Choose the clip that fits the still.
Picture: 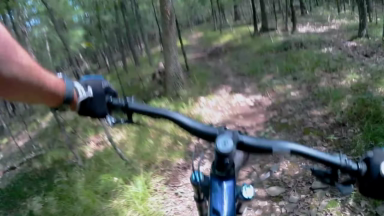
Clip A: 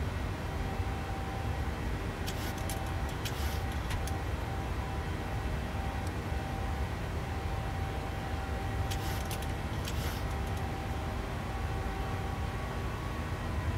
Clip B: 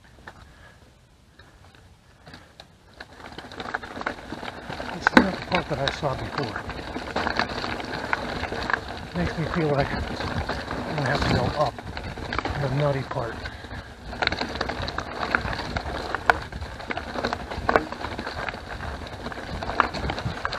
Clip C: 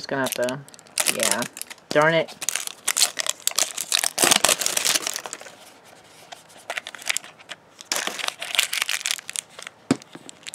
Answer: B